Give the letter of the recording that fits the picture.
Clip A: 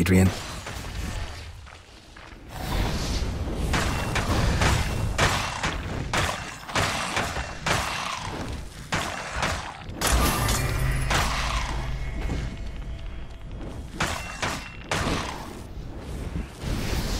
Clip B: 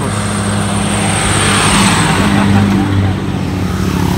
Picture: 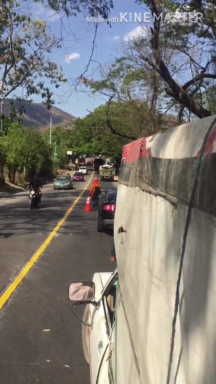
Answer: B